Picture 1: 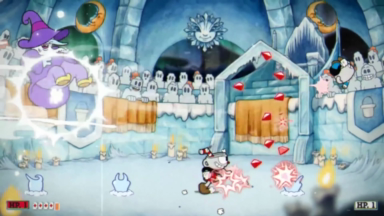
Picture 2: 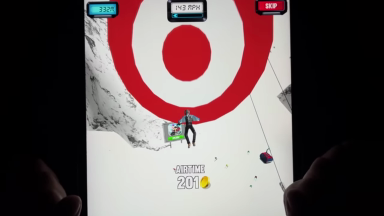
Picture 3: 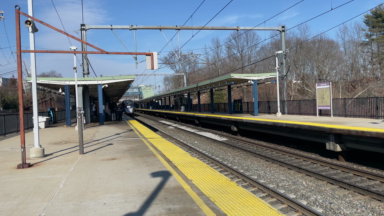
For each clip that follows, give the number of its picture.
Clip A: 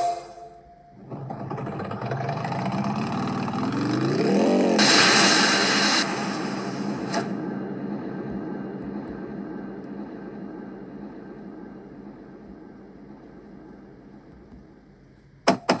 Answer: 2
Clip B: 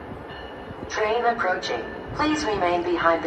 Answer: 3